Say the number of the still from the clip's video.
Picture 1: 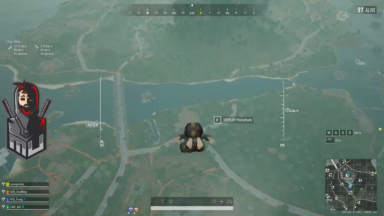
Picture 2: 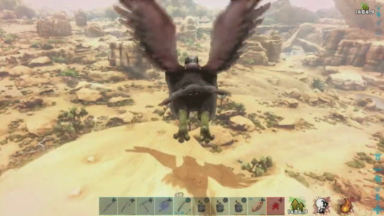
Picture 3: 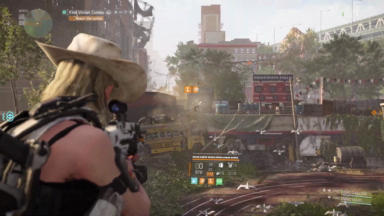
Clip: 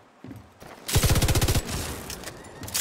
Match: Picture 3